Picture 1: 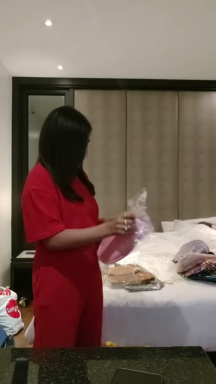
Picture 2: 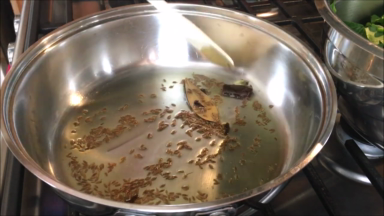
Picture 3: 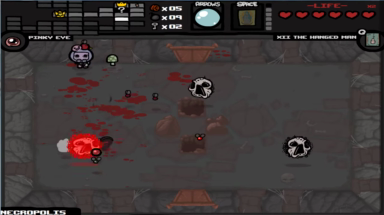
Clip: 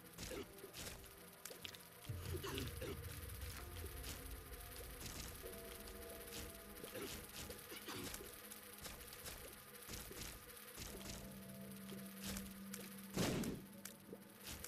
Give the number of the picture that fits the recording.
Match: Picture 3